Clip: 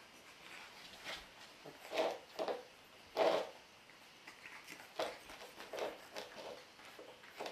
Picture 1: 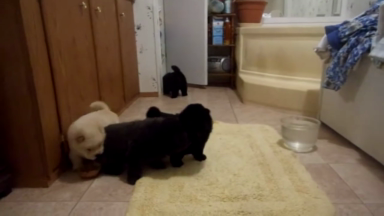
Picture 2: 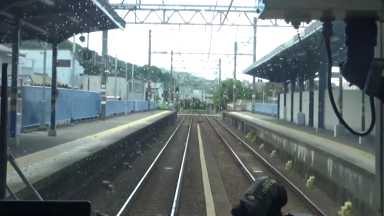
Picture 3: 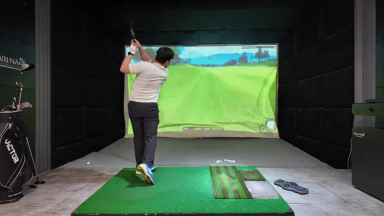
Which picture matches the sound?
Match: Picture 1